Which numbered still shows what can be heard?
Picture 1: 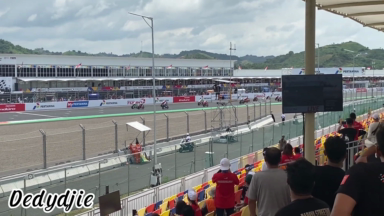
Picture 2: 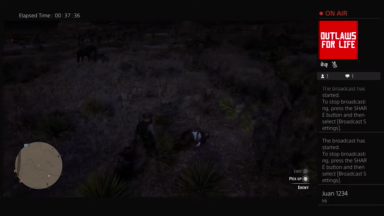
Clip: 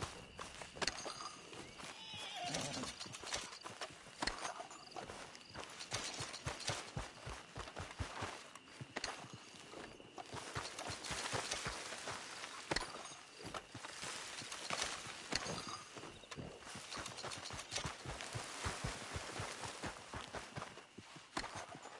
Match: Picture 2